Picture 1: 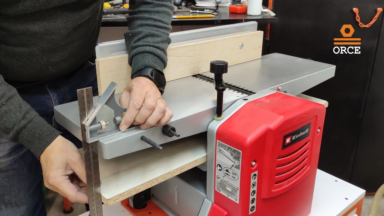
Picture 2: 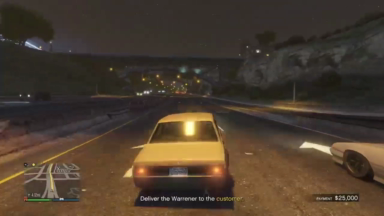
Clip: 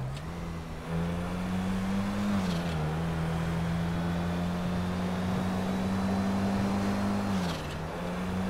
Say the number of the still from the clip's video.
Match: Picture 2